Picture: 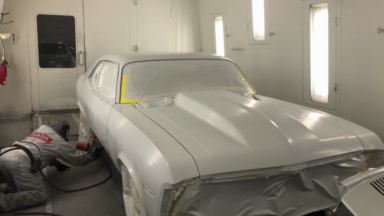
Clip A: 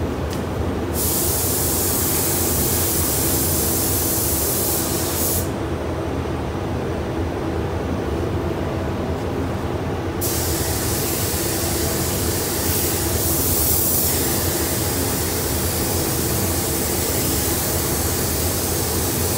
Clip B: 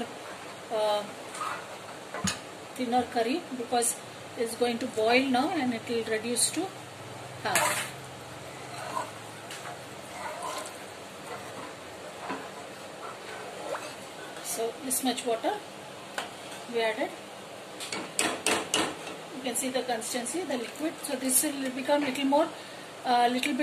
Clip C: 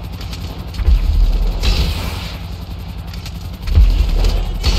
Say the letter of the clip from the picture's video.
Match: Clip A